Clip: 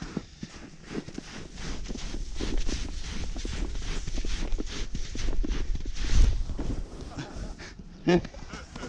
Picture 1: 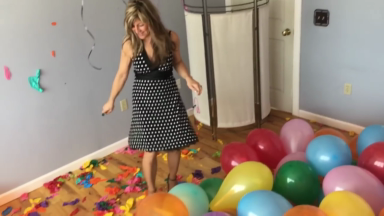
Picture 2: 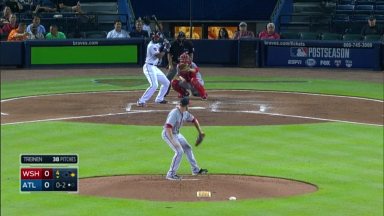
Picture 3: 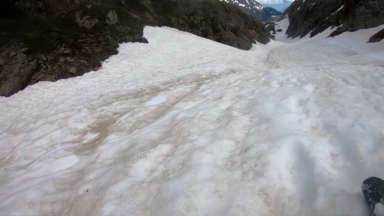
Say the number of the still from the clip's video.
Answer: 3